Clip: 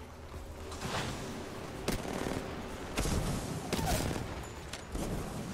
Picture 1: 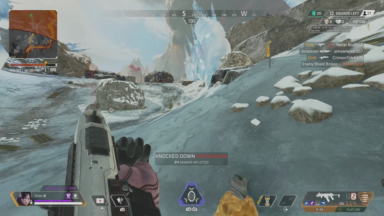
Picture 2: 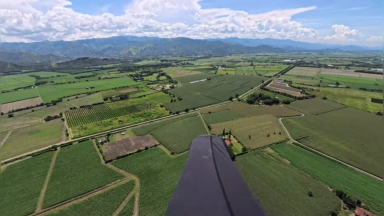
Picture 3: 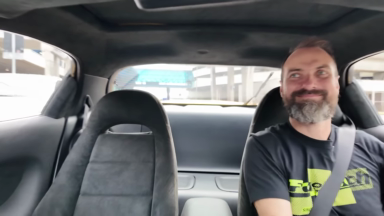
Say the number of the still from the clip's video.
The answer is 1